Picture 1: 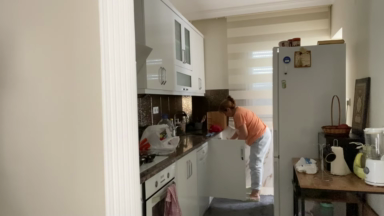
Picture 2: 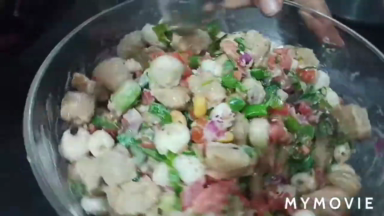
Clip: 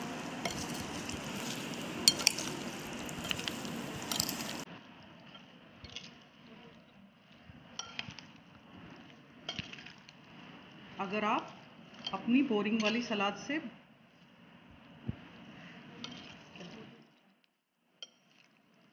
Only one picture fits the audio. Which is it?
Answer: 2